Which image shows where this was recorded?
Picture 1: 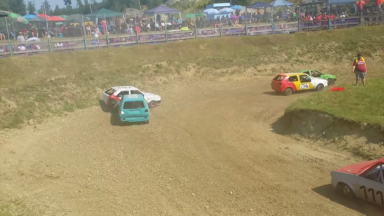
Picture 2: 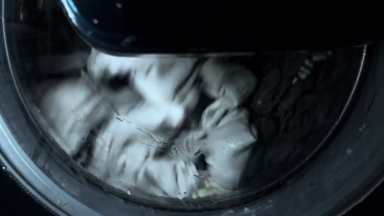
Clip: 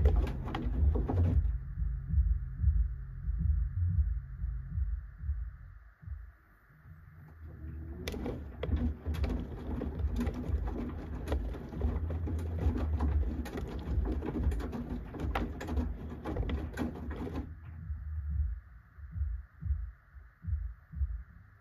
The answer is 2